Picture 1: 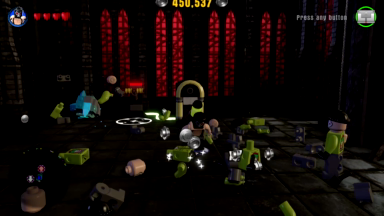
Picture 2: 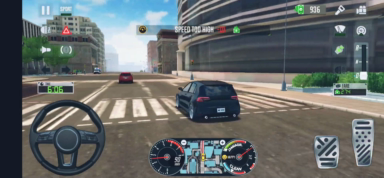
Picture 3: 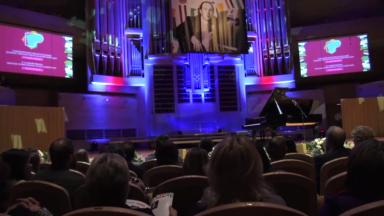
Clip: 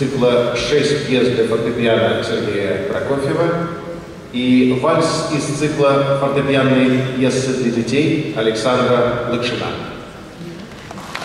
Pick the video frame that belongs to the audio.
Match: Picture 3